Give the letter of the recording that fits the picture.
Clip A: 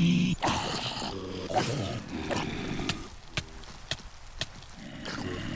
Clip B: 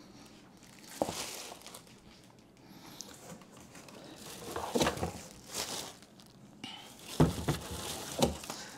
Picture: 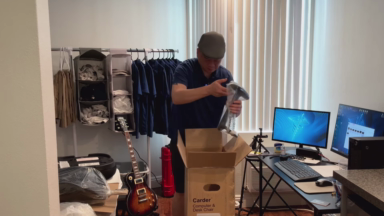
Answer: B